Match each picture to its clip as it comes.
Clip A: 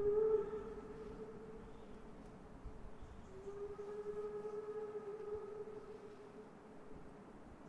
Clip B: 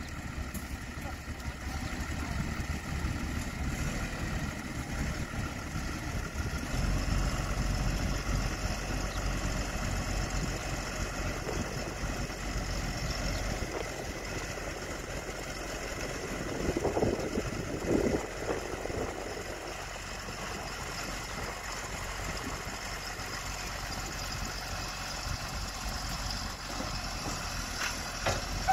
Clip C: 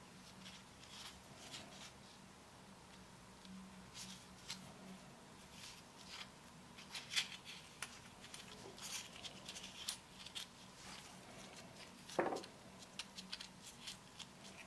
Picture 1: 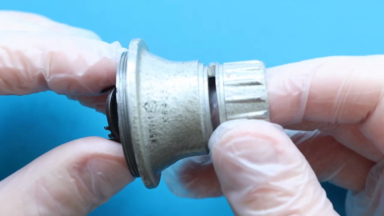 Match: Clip C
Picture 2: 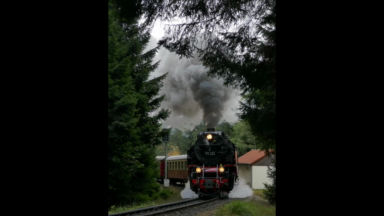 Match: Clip A